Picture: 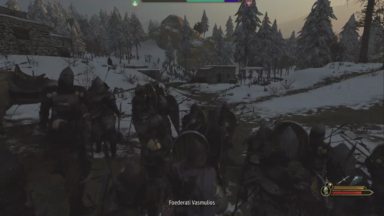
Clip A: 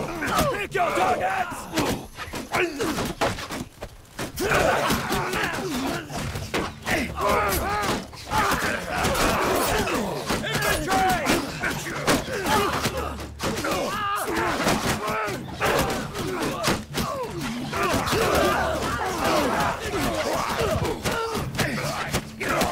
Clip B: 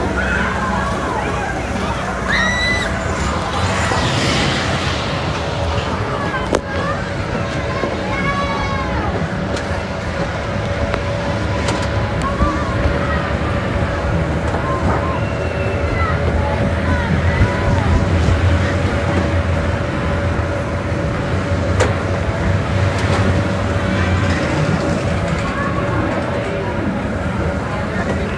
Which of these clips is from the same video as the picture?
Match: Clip A